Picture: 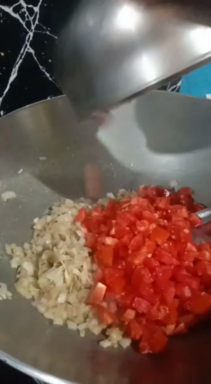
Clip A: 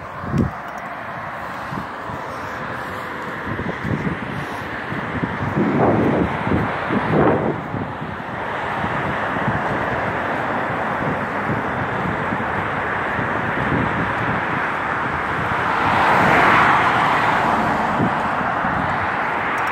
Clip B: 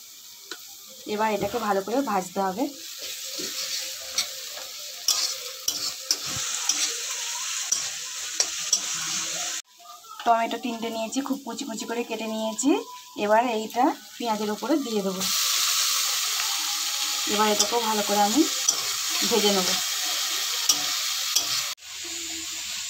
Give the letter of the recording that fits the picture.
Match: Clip B